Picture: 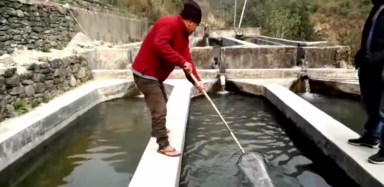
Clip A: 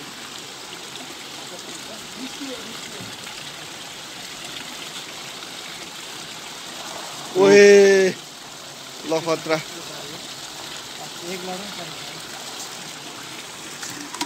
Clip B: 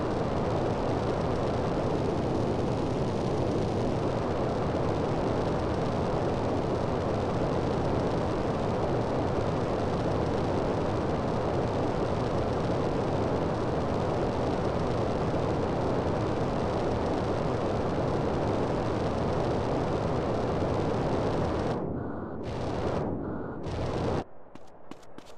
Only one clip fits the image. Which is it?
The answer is A